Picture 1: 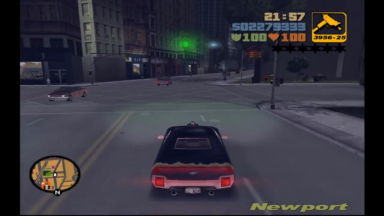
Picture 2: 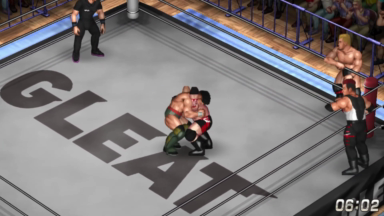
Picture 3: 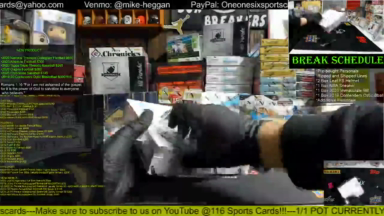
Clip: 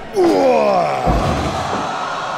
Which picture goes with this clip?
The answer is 2